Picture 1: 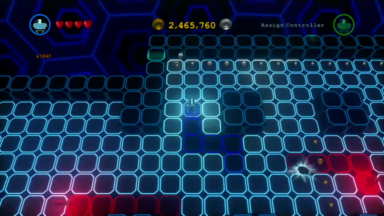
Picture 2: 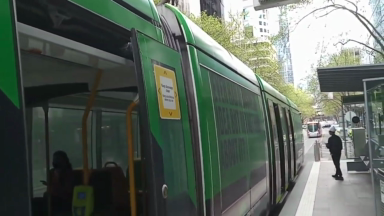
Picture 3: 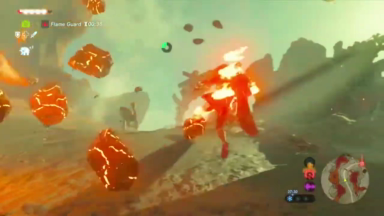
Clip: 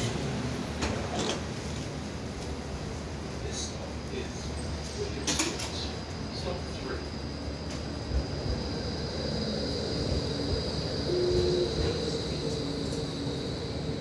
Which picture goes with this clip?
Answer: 2